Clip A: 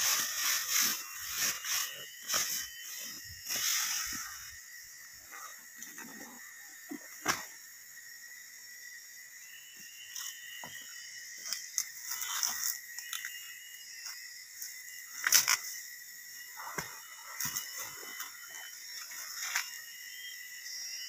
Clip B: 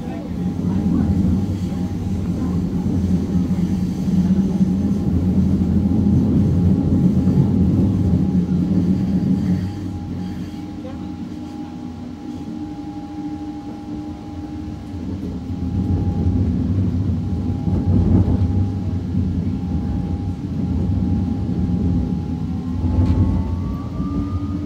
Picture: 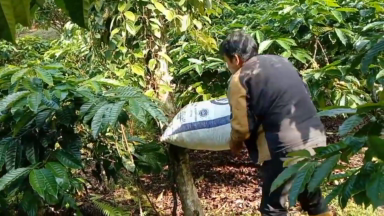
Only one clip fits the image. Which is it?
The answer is A